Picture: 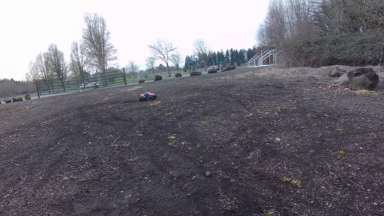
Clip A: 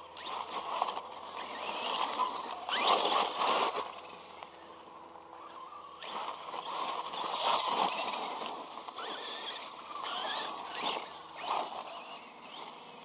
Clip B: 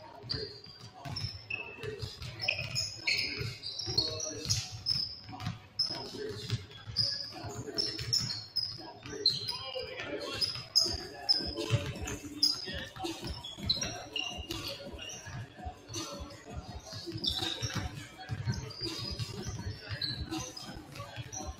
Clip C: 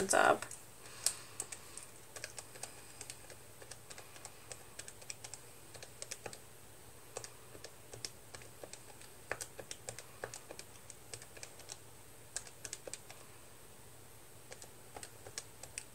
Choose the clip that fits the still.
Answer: A